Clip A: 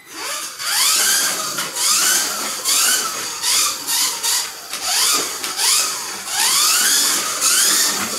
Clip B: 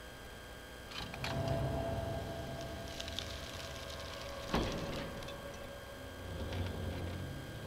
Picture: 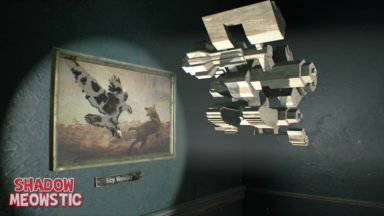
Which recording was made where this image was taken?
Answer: B